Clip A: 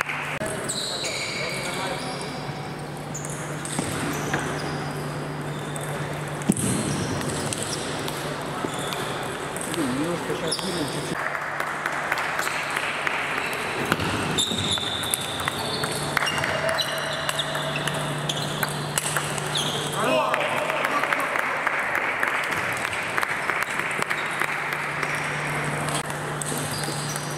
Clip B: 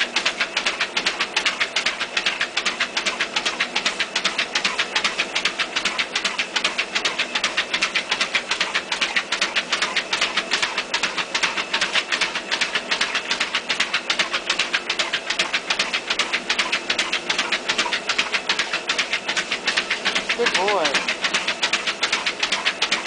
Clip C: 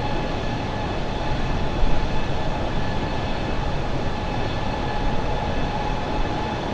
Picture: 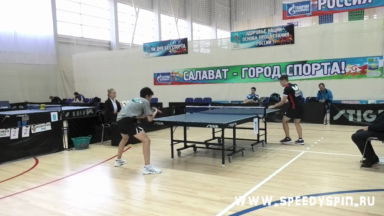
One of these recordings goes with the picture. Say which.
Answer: A